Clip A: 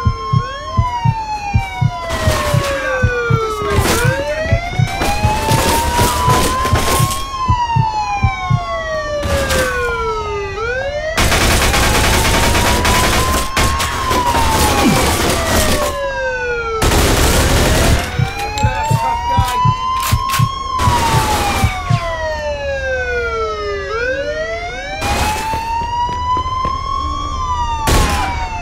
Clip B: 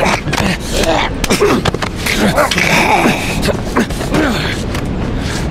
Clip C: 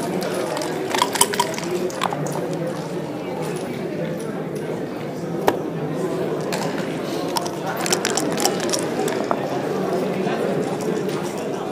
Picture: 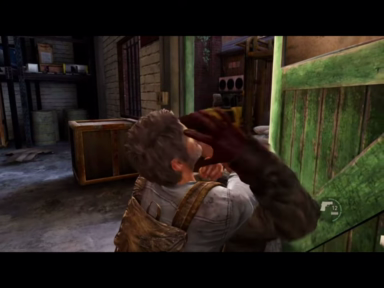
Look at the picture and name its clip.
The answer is B